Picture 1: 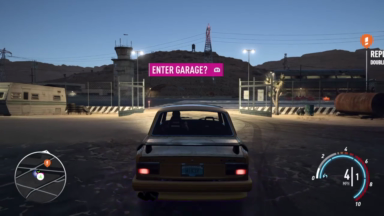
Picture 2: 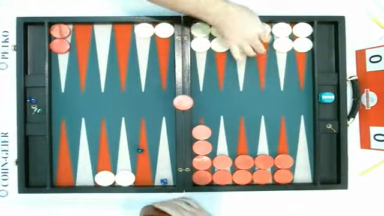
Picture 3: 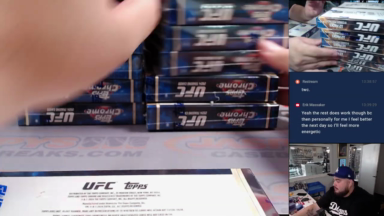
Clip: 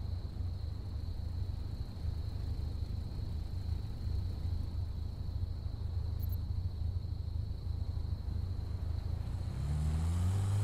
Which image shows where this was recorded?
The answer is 1